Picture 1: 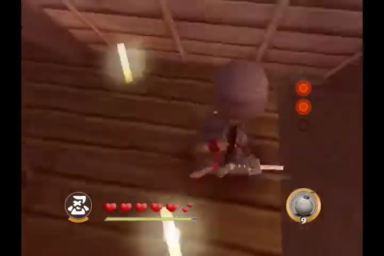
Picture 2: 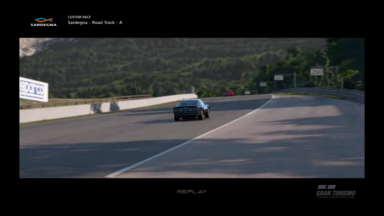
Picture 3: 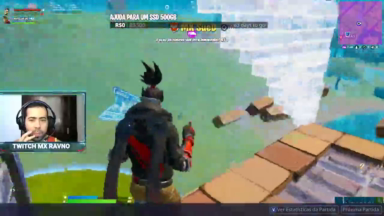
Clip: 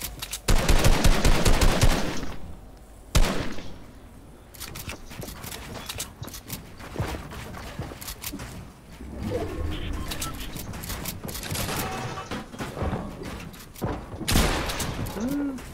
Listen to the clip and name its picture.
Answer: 3